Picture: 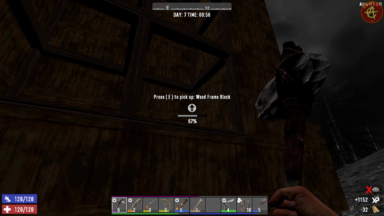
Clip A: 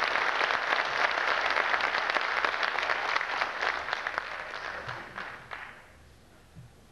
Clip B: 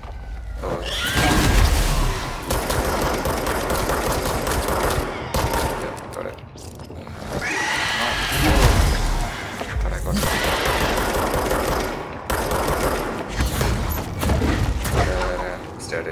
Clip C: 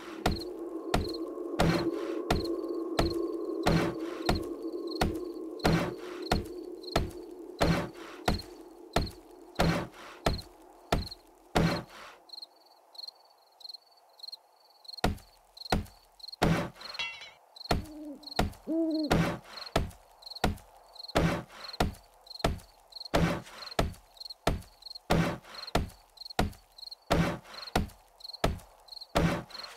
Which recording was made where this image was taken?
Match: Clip C